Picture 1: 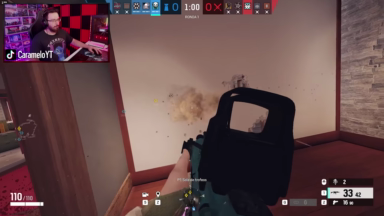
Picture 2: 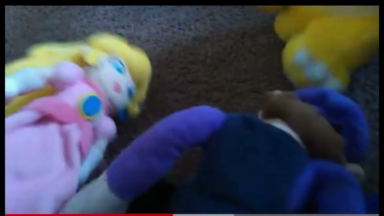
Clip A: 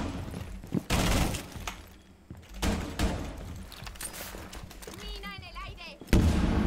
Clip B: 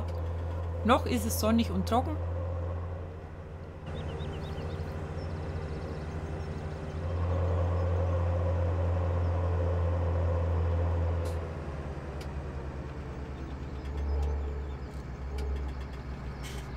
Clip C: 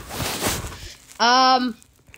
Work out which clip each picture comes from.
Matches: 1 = A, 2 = C